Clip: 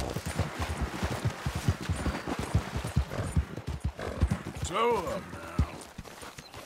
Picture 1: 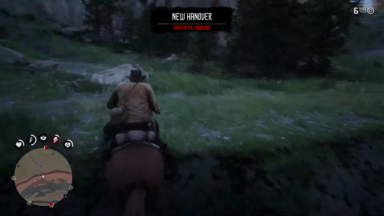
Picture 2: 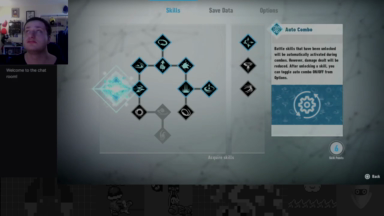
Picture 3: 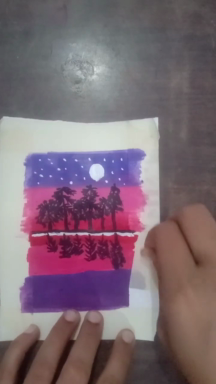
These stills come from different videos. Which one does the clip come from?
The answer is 1